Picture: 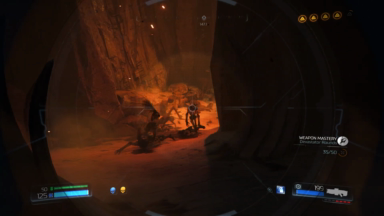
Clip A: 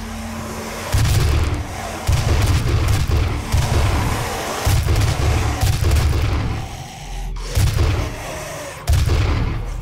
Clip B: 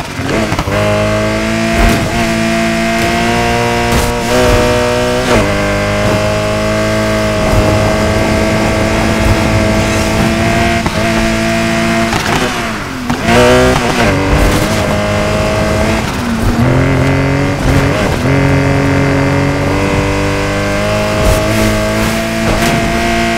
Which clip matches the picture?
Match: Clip A